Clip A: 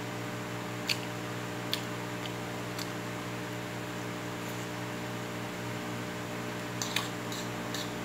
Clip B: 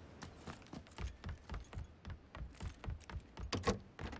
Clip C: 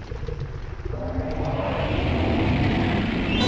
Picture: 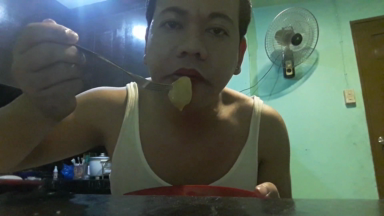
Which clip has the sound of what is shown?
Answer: A